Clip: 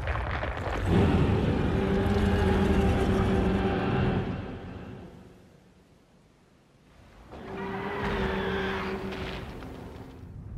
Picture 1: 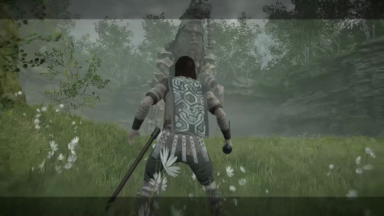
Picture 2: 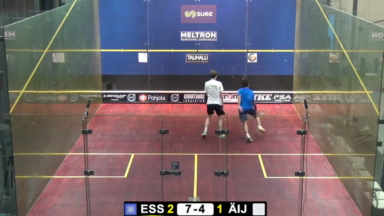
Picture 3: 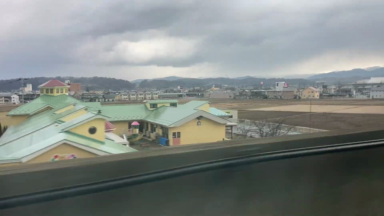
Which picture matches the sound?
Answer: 1